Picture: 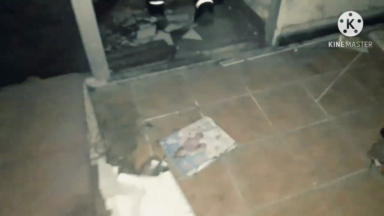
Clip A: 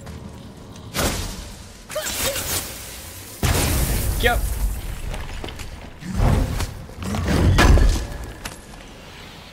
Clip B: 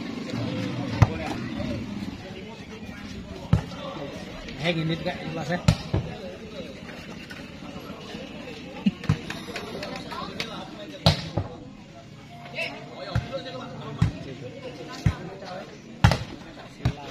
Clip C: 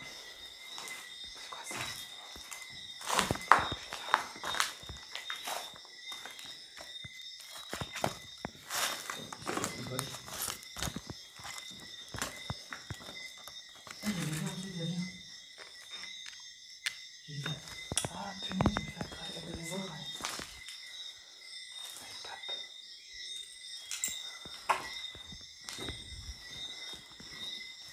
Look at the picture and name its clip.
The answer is C